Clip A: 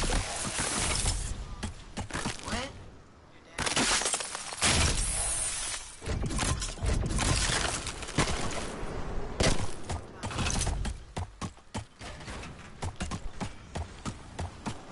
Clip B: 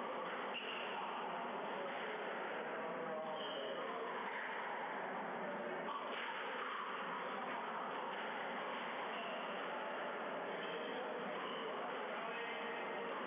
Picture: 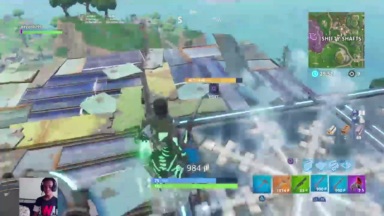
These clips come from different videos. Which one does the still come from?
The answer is A